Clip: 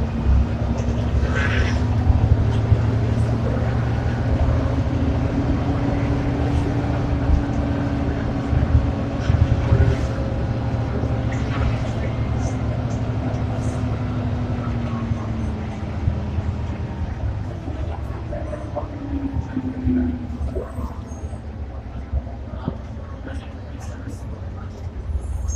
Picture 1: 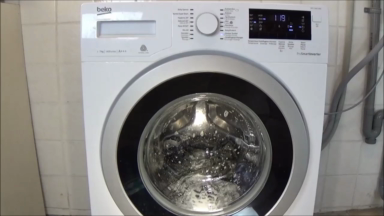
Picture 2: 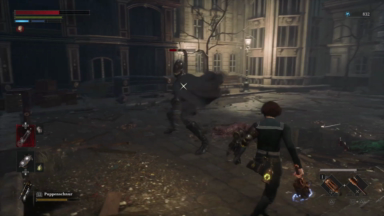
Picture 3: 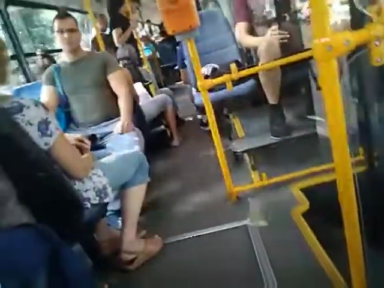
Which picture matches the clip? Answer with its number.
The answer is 3